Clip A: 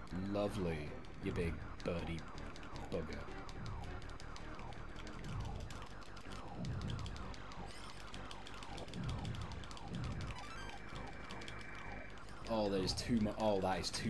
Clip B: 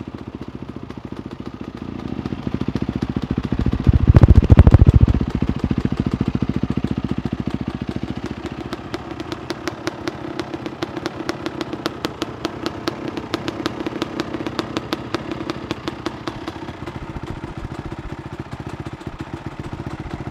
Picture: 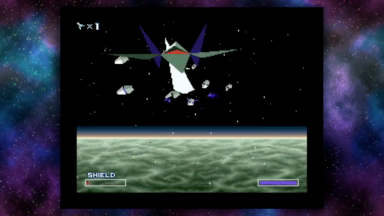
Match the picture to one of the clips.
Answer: A